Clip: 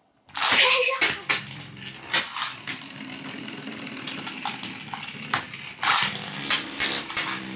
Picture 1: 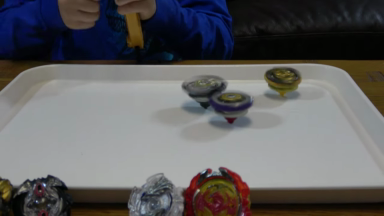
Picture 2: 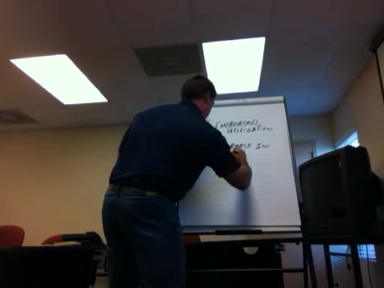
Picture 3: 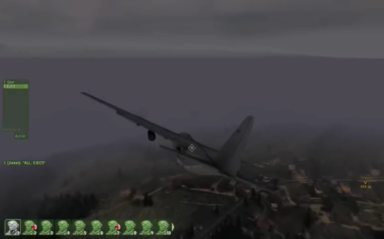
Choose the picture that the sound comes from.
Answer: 1